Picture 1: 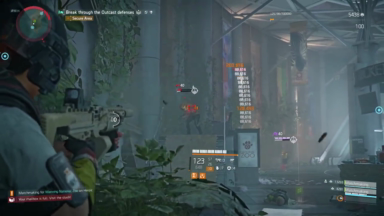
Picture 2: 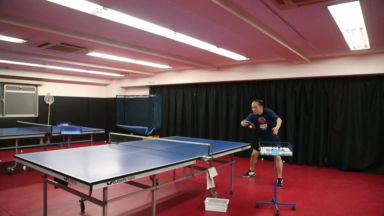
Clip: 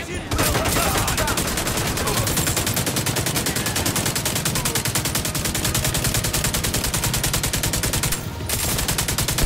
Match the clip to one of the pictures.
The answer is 1